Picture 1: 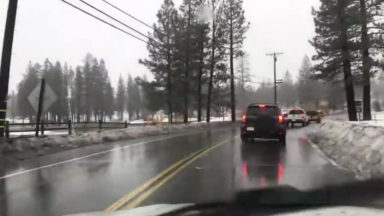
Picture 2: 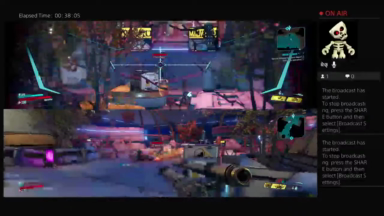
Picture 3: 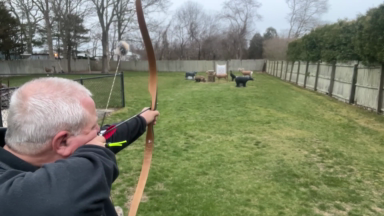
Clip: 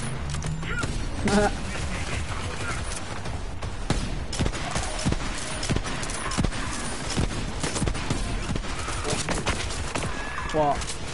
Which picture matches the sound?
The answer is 2